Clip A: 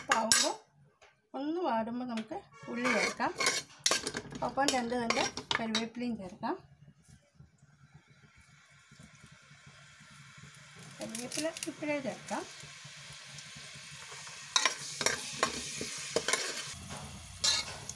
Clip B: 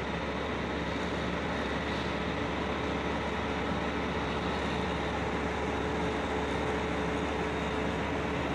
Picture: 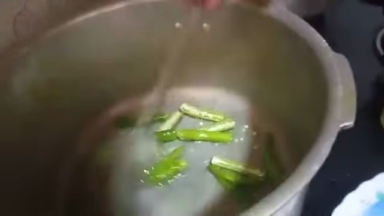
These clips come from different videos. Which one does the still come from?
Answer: A